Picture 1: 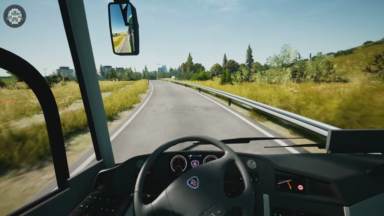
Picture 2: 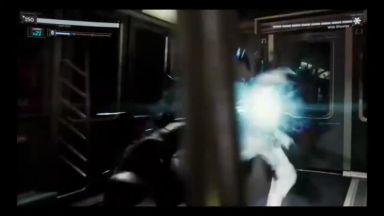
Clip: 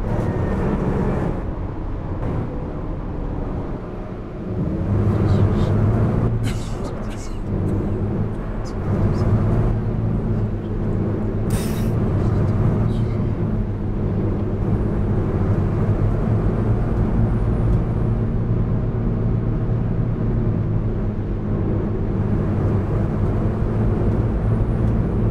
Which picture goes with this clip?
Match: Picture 1